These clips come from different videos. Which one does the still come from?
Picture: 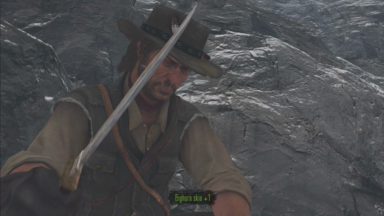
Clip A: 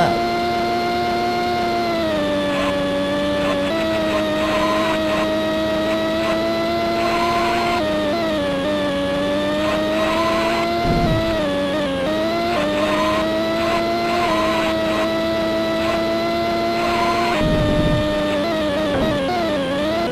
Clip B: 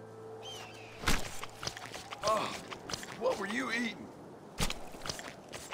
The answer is B